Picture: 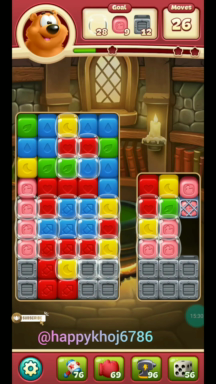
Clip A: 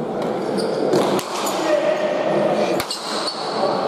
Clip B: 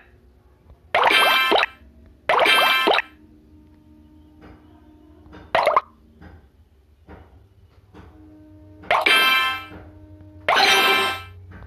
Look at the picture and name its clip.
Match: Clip B